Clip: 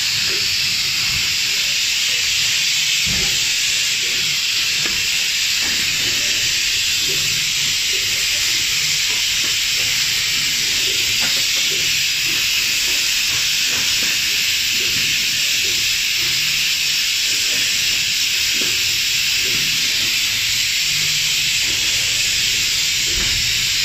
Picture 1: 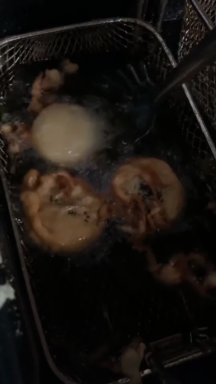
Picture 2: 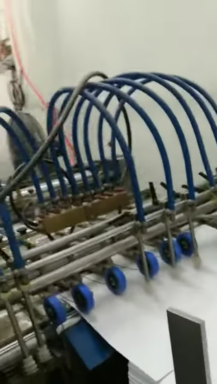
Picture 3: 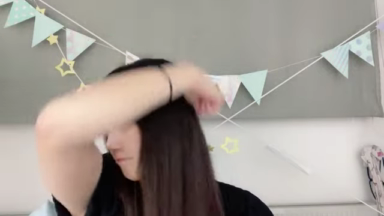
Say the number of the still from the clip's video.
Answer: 2